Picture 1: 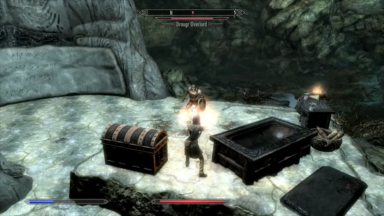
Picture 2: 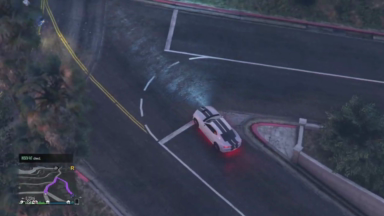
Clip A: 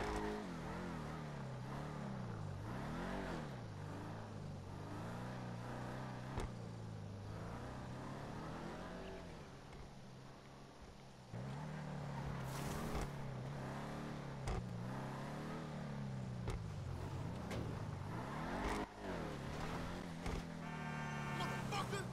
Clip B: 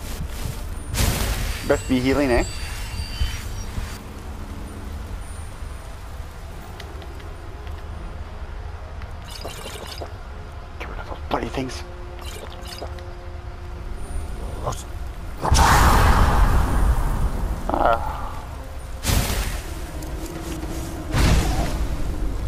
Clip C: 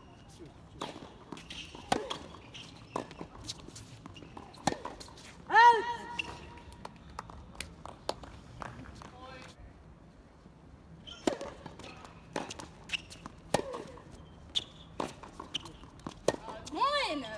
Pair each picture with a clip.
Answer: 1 B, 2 A